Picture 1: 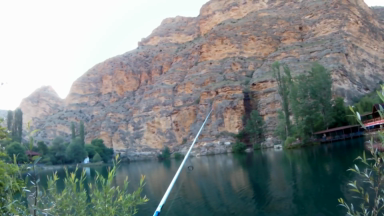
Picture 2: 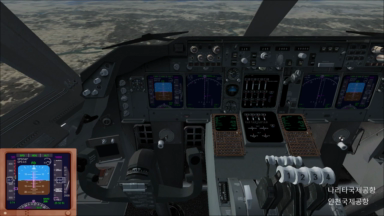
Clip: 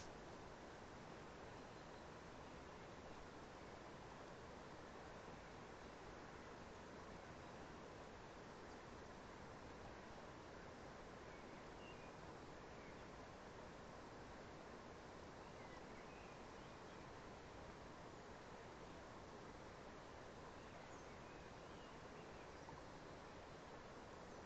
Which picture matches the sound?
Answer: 1